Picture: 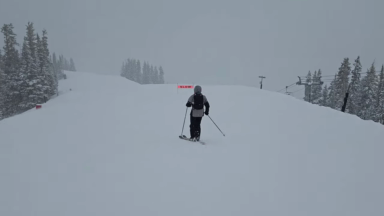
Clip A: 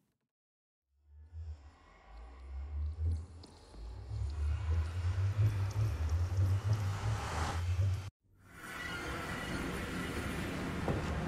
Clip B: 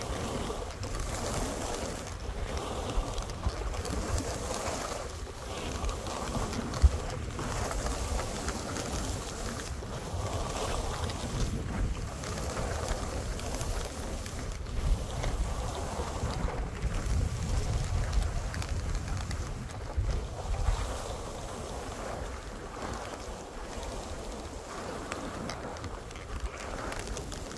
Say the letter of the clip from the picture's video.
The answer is B